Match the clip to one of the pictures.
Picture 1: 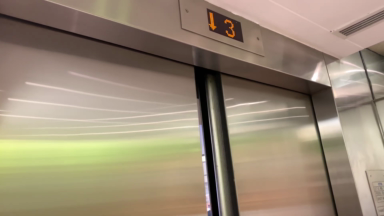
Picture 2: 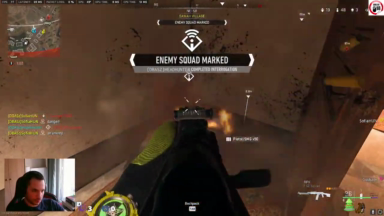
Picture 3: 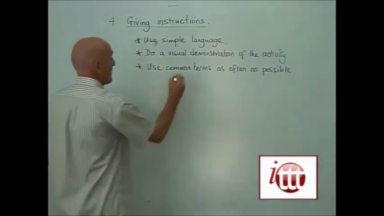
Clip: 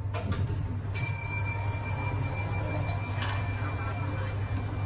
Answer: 1